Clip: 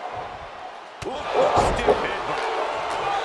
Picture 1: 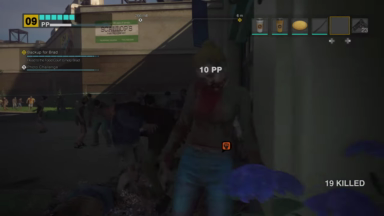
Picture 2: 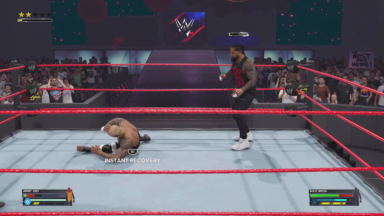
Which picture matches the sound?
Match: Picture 2